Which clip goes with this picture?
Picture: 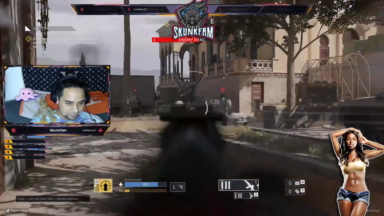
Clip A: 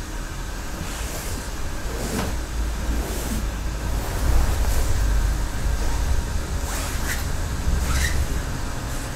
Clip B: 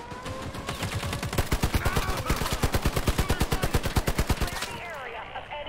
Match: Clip B